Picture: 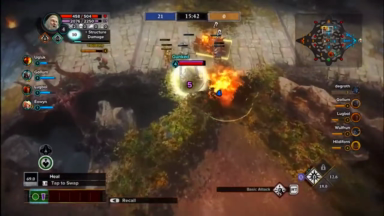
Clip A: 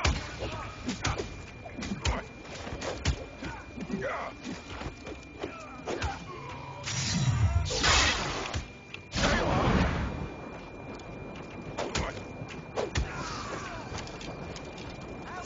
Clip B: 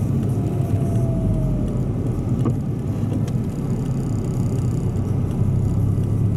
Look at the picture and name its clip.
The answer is A